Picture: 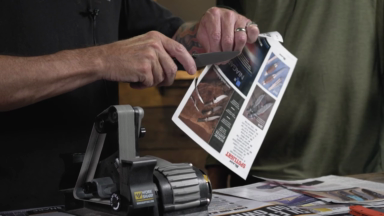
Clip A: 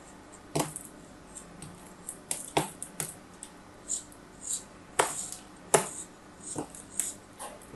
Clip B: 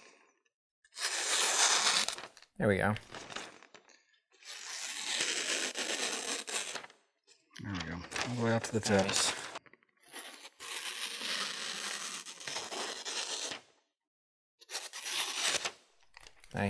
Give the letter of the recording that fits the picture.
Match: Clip B